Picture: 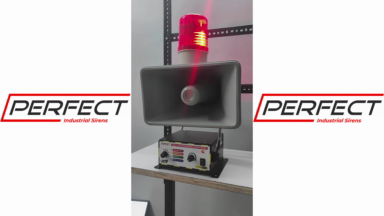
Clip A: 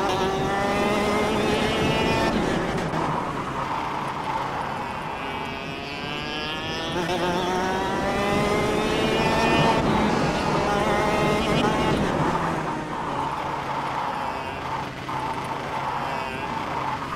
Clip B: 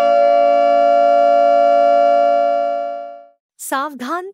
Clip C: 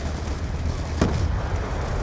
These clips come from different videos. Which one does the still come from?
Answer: B